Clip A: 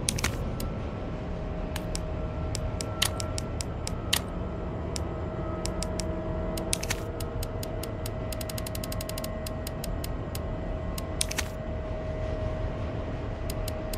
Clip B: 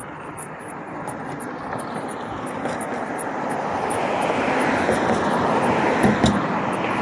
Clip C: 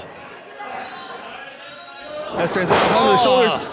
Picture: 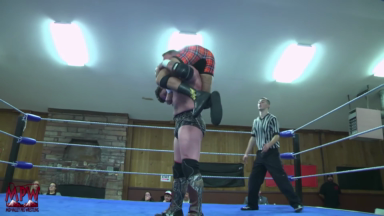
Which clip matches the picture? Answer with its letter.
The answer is C